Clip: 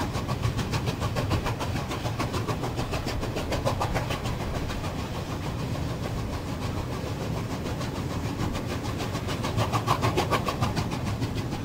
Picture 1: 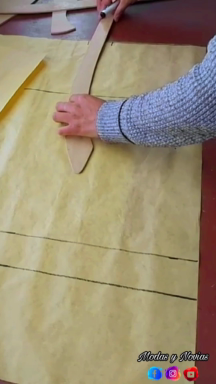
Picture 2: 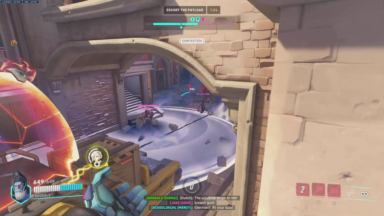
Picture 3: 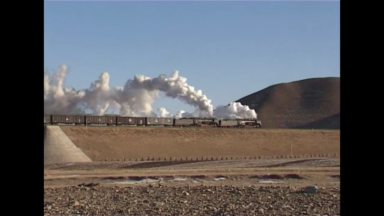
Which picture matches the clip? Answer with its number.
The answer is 3